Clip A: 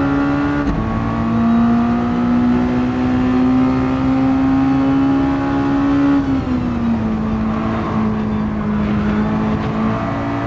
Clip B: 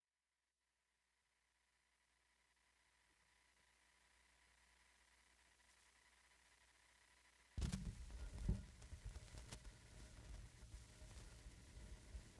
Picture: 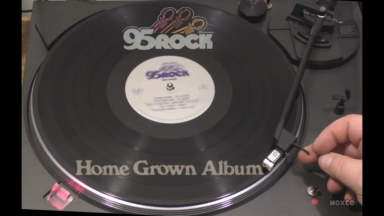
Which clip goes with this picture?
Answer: B